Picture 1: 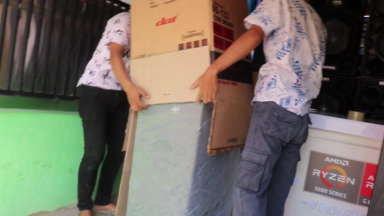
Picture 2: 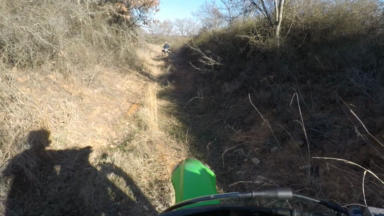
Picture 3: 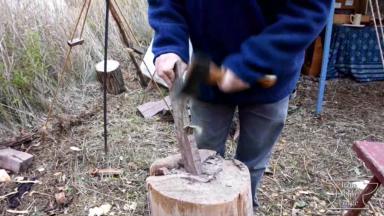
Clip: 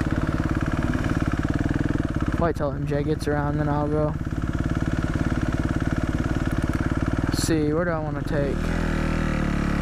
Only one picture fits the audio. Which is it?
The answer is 2